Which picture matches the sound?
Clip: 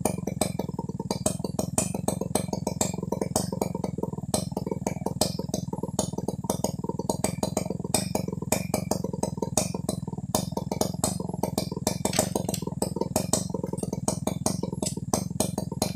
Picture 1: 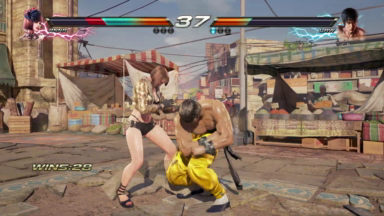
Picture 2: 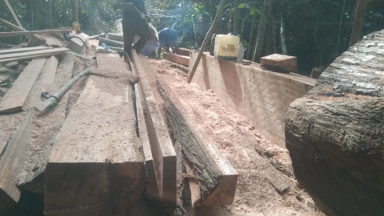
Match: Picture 2